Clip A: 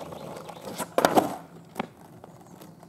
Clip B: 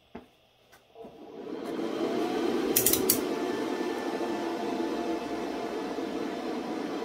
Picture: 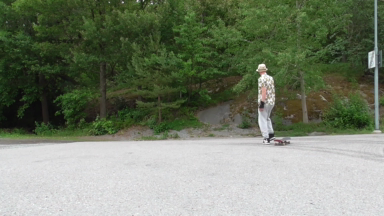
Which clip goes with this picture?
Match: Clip A